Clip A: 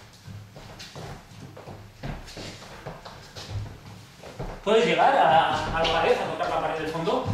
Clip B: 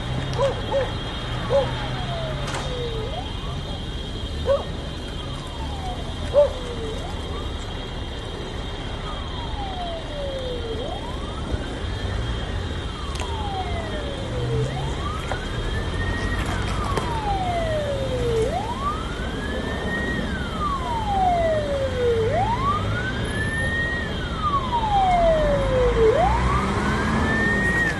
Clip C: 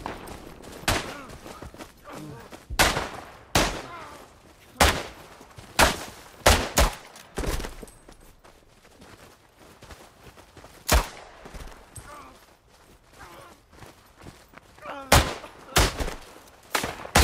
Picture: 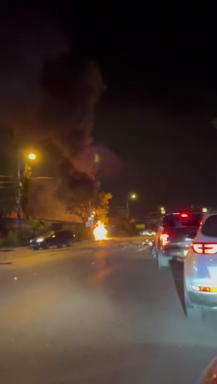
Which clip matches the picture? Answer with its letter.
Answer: B